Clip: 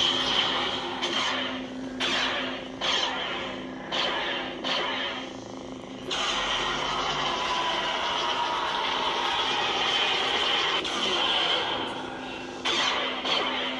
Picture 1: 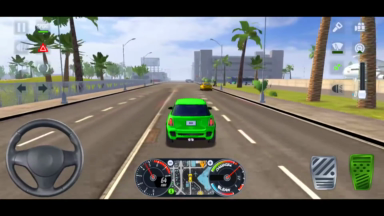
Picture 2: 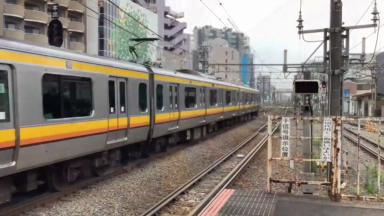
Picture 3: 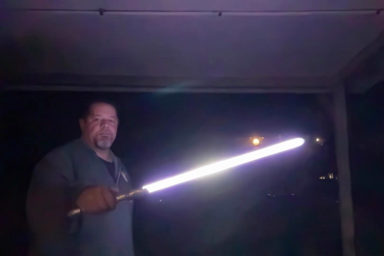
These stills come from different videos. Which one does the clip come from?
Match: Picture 3